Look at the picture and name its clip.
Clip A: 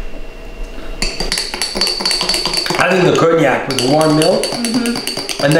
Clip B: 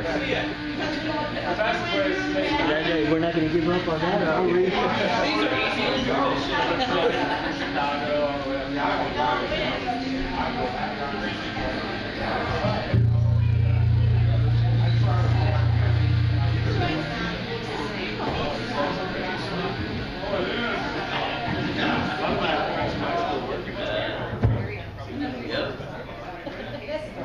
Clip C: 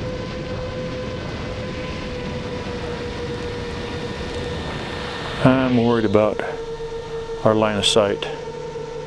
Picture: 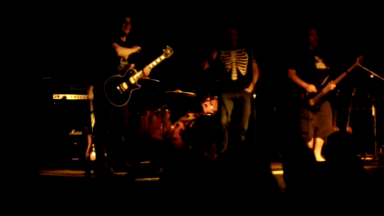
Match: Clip B